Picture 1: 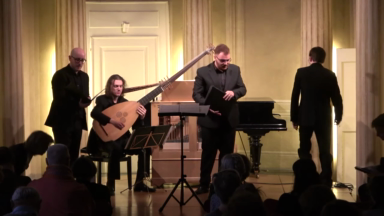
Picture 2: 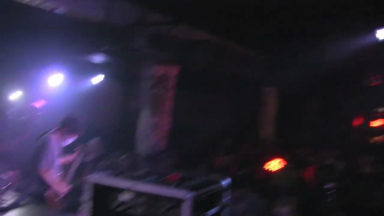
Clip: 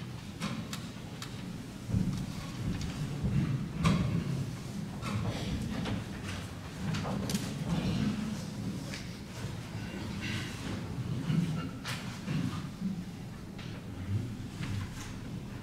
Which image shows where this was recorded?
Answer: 1